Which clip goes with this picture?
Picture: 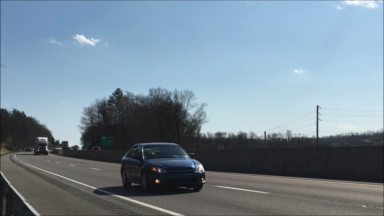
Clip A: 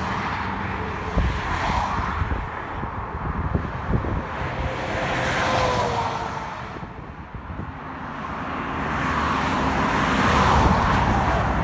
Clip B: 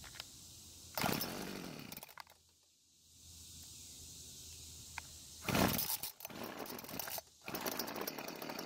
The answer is A